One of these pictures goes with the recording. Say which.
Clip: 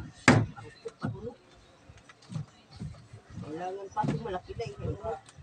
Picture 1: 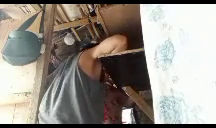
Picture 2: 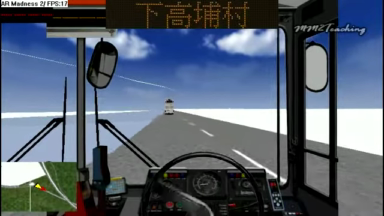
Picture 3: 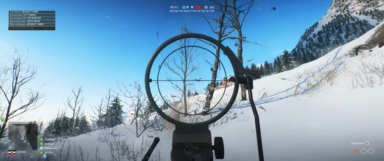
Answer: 1